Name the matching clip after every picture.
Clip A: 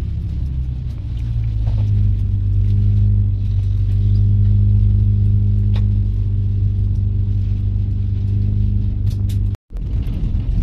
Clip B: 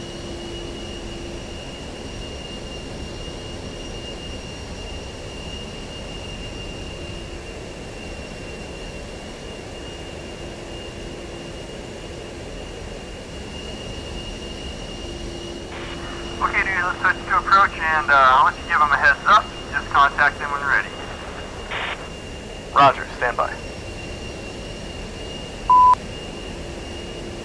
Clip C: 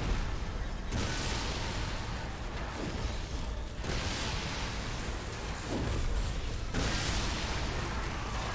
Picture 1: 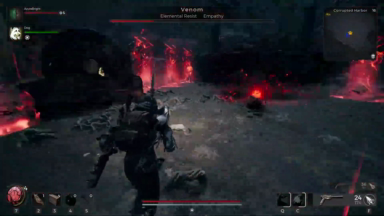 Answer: C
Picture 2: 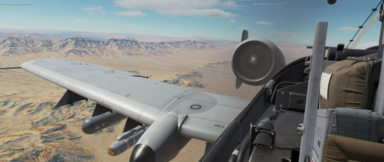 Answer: B